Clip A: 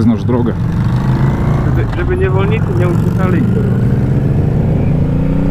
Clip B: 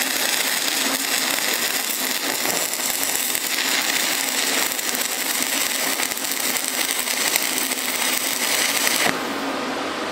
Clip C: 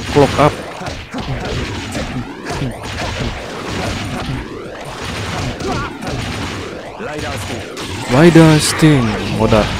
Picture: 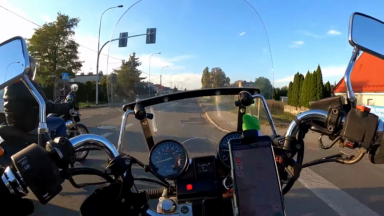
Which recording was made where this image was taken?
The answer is A